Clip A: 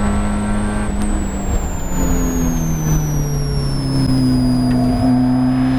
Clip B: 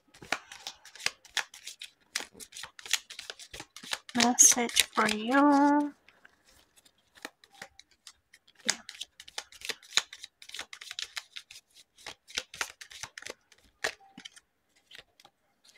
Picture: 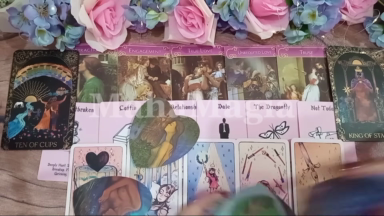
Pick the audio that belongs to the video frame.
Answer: B